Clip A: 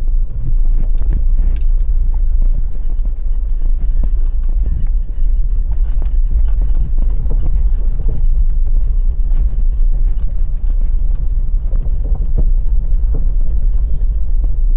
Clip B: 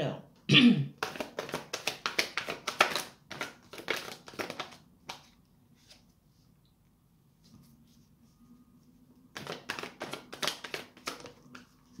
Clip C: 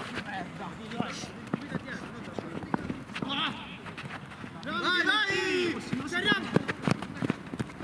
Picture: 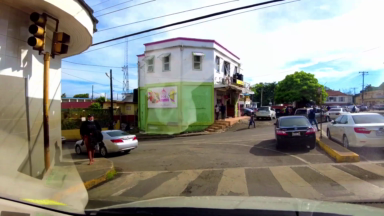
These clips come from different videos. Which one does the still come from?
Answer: A